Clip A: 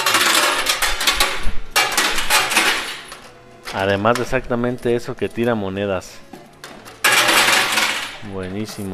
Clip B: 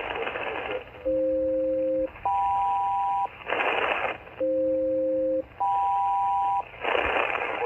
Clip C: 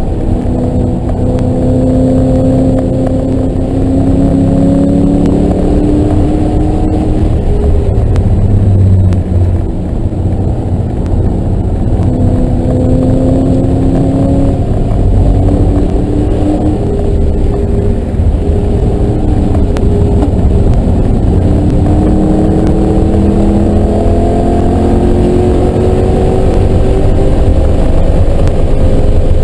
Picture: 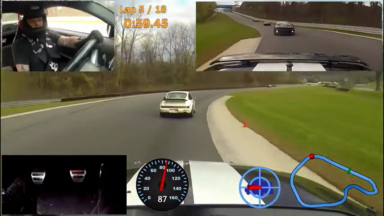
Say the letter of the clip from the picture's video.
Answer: C